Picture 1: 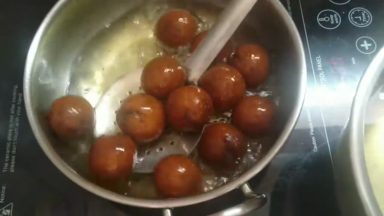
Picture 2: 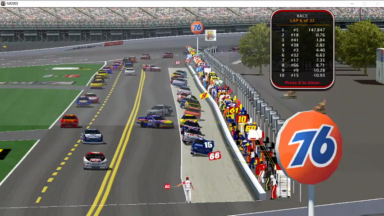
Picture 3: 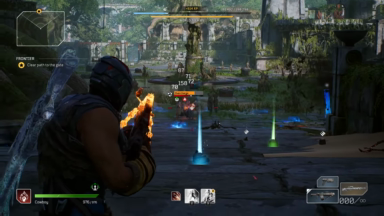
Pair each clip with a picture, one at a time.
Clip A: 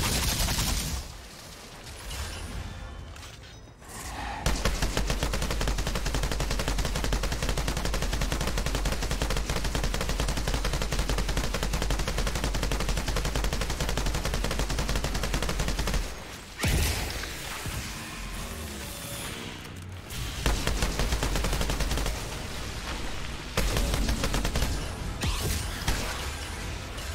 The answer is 3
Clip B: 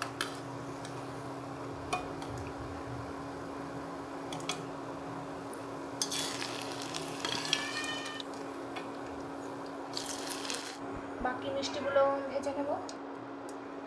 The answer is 1